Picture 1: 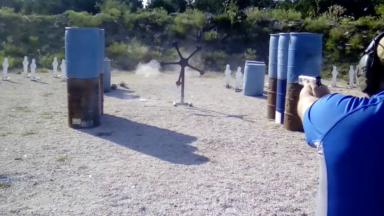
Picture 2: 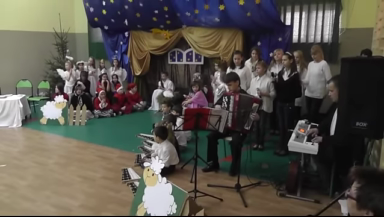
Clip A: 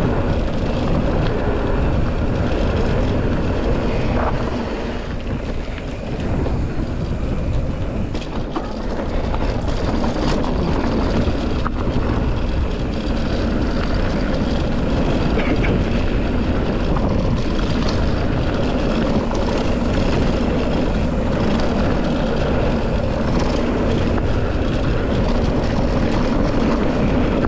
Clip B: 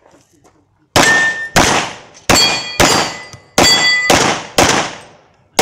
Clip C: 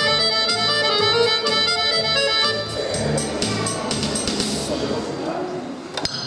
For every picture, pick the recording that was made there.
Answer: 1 B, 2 C